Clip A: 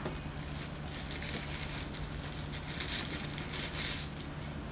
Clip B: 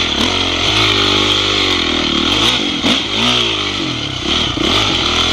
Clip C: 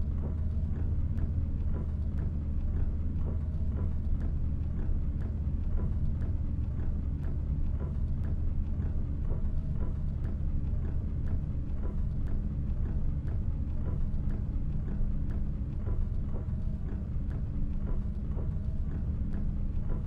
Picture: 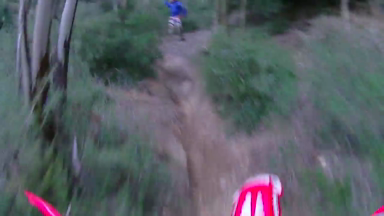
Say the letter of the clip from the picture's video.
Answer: B